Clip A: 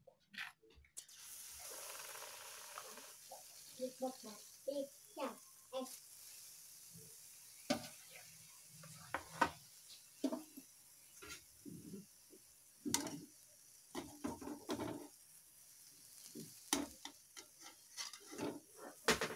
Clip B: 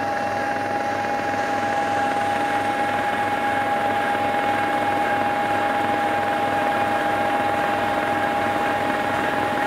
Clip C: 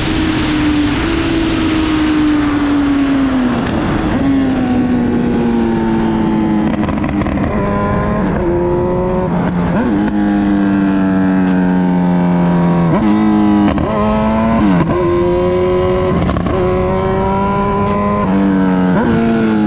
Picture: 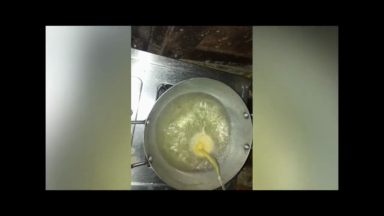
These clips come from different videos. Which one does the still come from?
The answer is A